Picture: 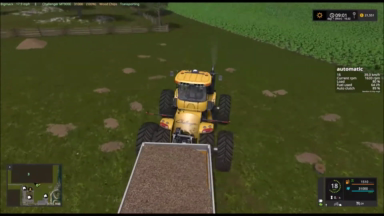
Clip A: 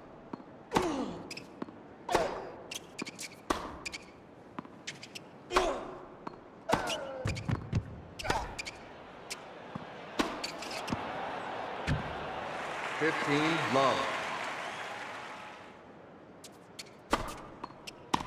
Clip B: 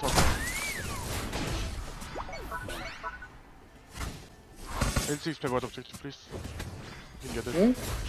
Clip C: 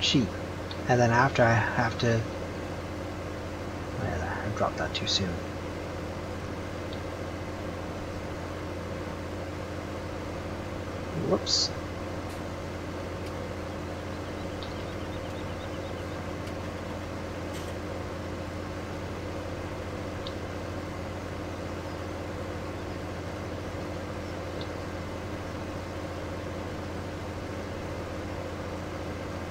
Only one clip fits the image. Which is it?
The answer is C